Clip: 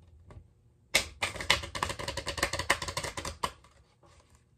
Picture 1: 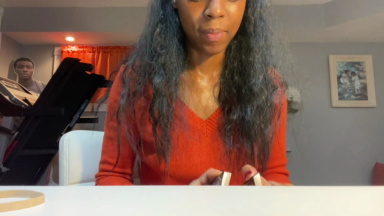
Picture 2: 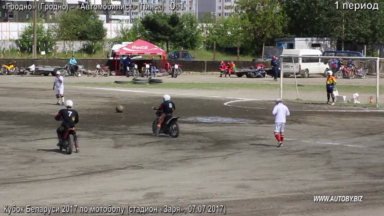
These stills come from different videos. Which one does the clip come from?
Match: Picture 1